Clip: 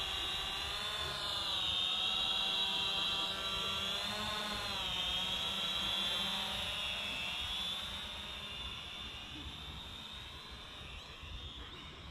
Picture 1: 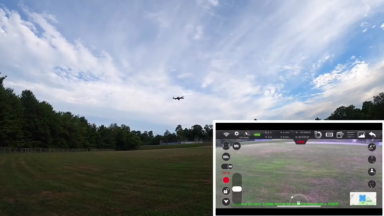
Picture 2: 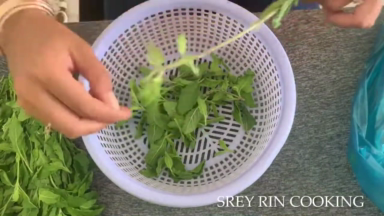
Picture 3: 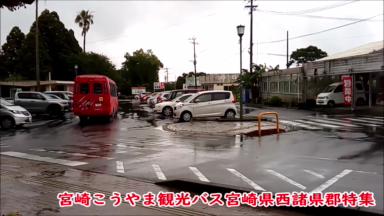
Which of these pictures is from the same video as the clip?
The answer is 1